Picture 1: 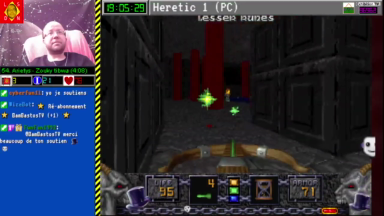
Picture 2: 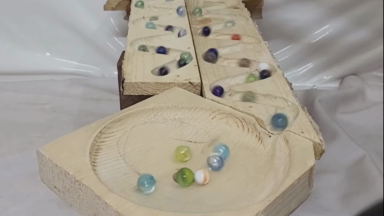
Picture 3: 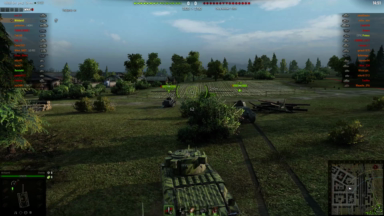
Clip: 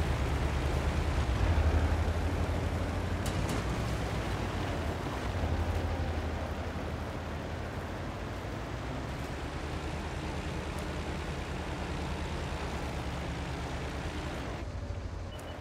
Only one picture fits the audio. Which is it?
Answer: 3